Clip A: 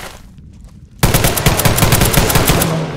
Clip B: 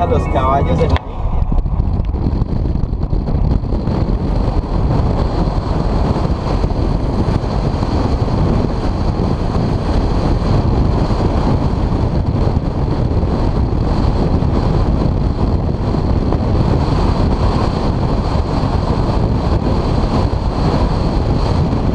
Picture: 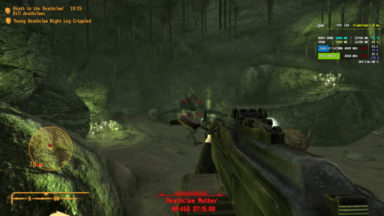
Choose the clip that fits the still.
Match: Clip A